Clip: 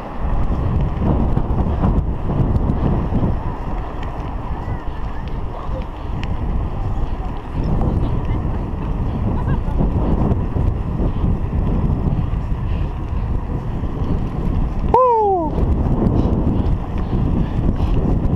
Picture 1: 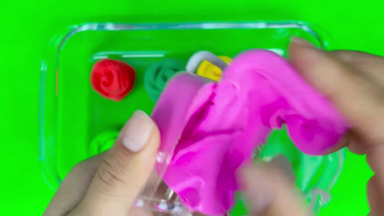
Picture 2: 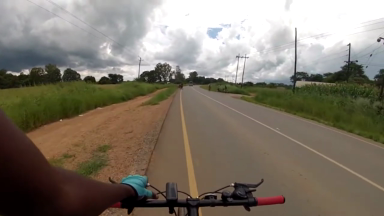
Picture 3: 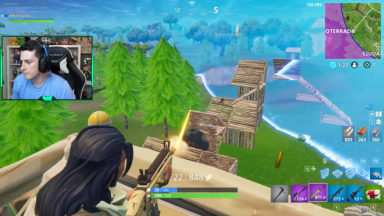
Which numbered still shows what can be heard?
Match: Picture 2